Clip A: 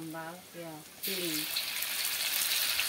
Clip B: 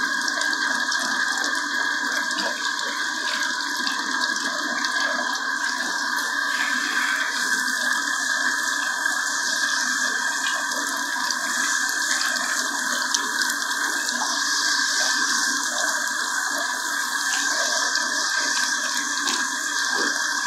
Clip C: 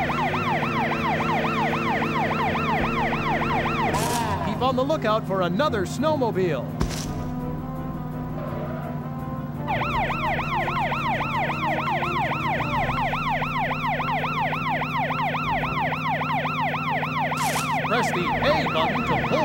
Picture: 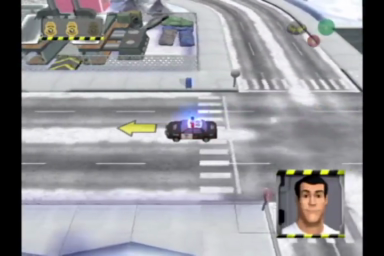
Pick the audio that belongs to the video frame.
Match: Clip C